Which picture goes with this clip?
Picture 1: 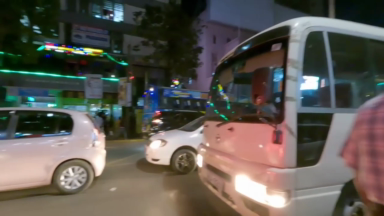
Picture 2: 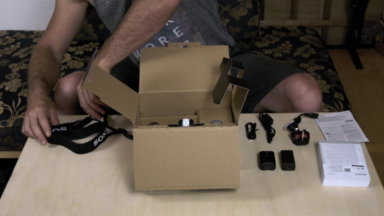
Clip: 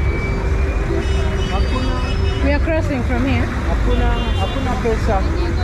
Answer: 1